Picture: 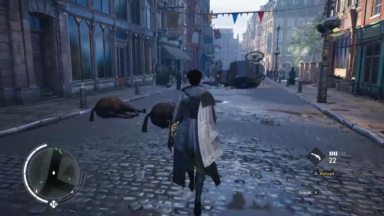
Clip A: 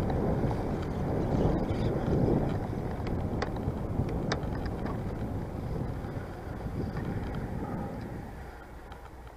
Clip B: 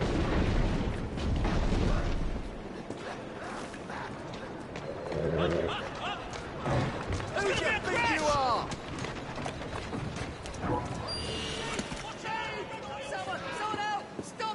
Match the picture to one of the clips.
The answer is B